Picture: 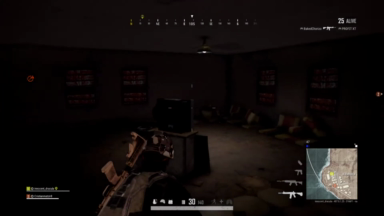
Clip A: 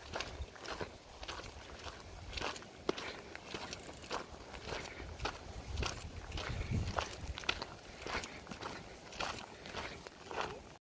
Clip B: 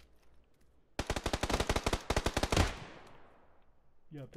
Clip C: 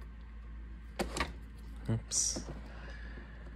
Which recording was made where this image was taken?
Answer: B